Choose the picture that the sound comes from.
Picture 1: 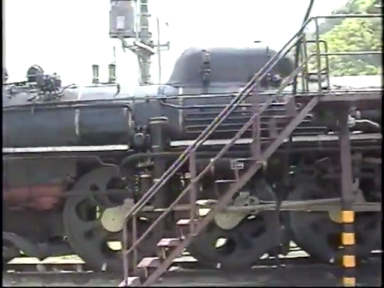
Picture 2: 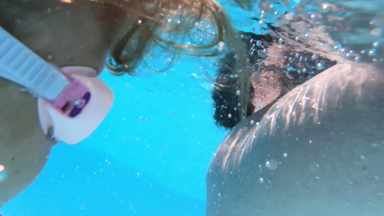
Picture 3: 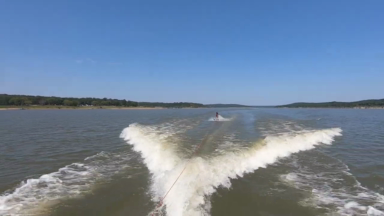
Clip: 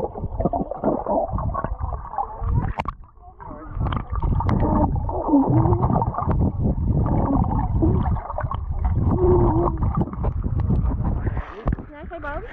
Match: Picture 2